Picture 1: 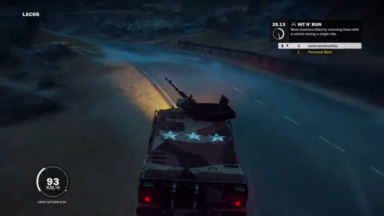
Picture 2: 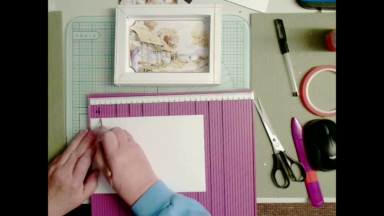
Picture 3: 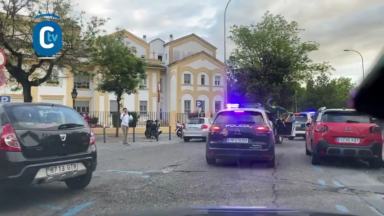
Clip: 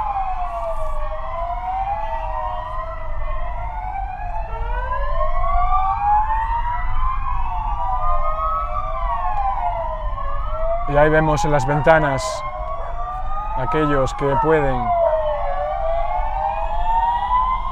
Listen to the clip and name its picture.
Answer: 3